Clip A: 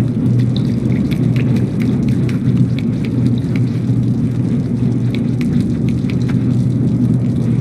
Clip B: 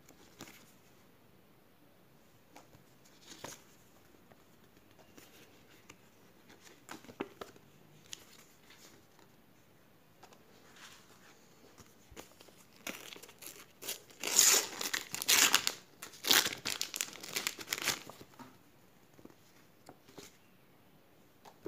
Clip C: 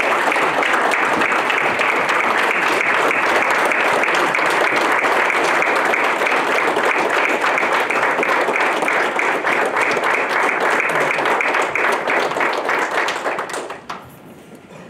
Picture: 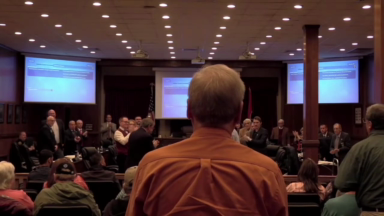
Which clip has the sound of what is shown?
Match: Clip C